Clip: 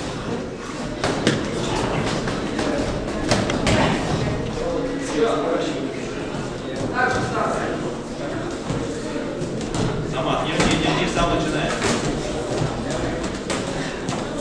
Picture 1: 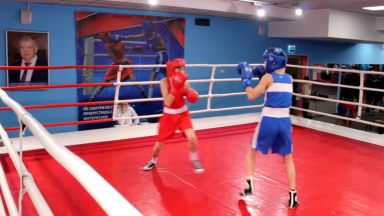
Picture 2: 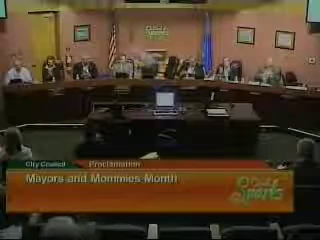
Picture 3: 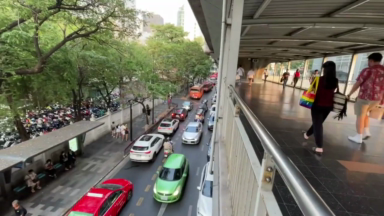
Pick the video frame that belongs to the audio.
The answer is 1